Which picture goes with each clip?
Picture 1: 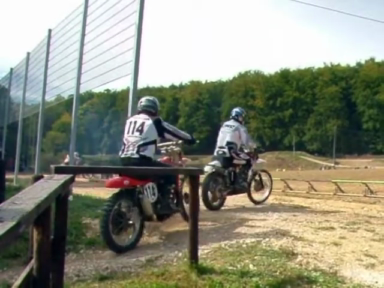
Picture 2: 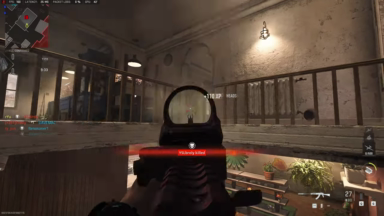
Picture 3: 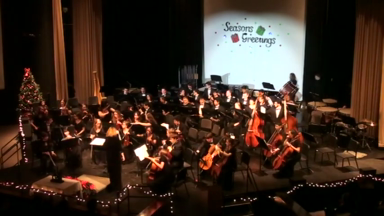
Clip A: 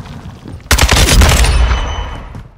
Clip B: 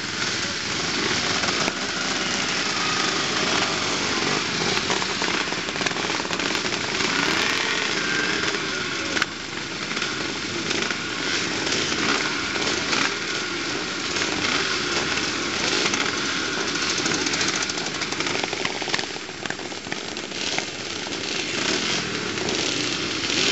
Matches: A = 2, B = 1